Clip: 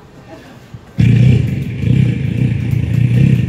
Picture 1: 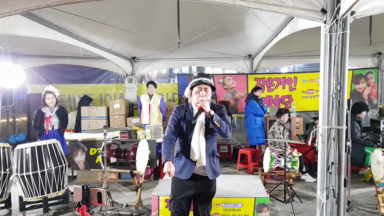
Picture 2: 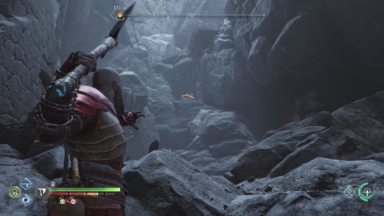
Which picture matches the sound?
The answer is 1